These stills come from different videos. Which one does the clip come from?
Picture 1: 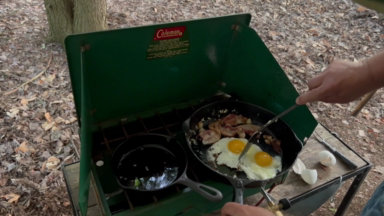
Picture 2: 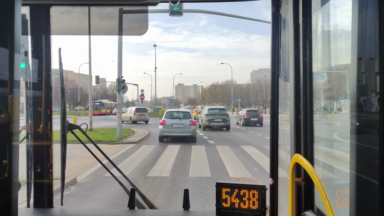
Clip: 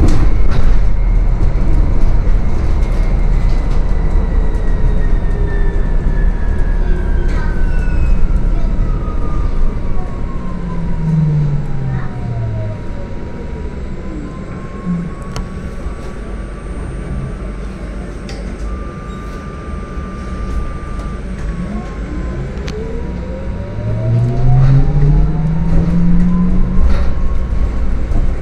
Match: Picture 2